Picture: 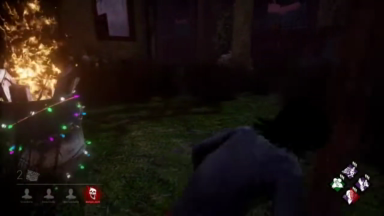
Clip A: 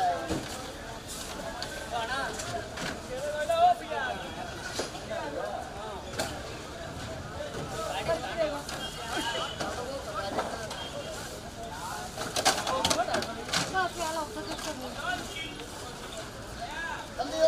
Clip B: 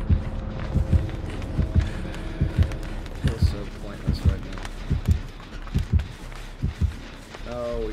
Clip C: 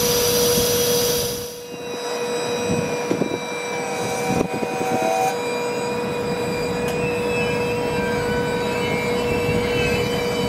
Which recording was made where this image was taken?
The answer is B